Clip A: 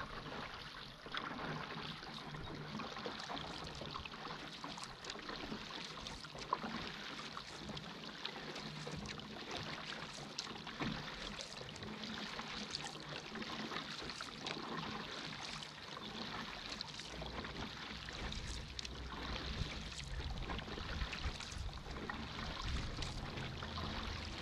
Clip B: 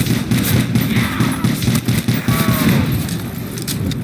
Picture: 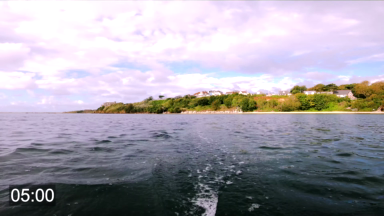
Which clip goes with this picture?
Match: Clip A